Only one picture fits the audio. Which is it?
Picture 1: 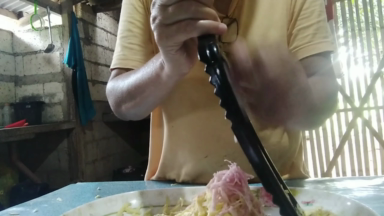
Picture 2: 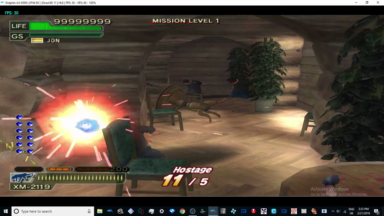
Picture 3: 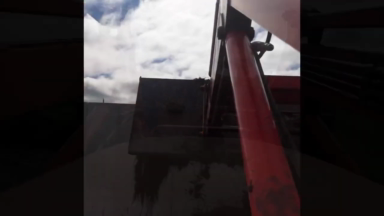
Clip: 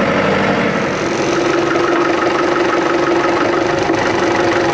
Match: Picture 3